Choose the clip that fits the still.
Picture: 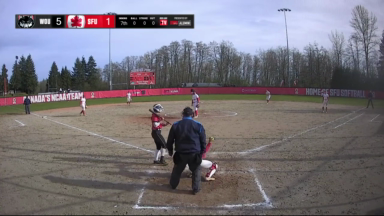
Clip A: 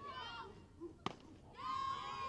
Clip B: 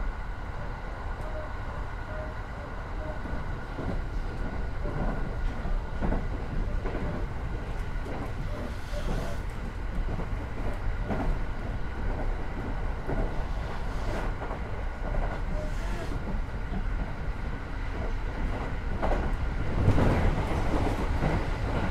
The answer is A